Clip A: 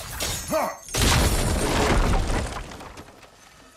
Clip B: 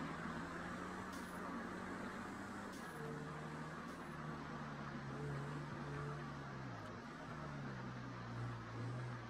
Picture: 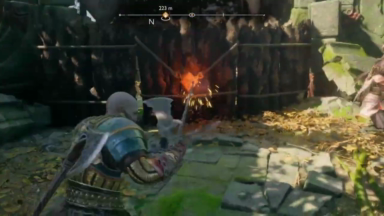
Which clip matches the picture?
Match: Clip A